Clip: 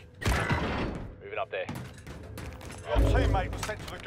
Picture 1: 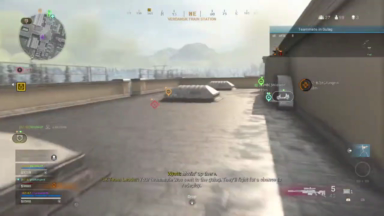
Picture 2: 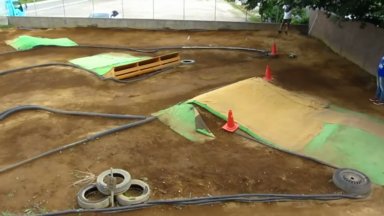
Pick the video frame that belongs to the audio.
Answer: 1